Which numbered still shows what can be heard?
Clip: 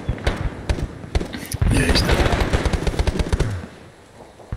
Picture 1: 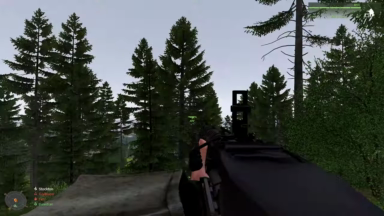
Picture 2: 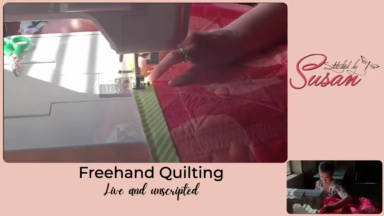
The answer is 1